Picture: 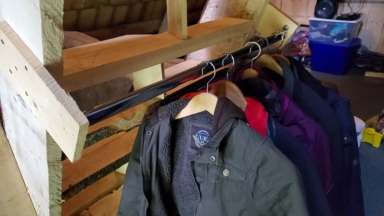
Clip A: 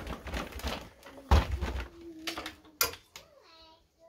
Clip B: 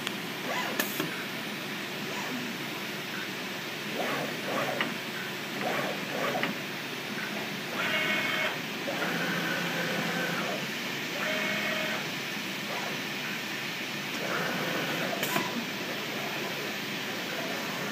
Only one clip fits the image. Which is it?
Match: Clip A